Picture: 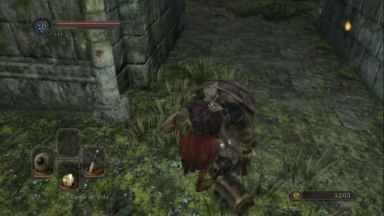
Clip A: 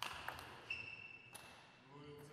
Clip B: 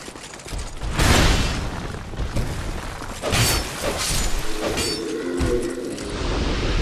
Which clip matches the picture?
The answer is B